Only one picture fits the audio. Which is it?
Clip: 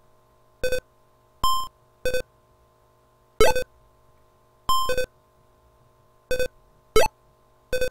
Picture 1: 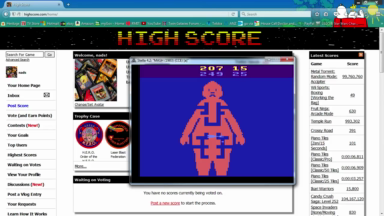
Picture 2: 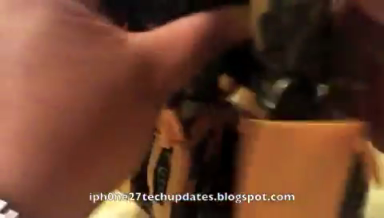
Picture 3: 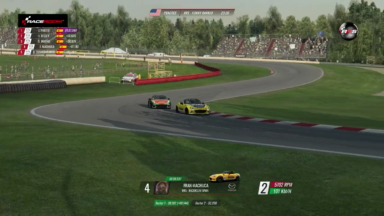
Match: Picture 1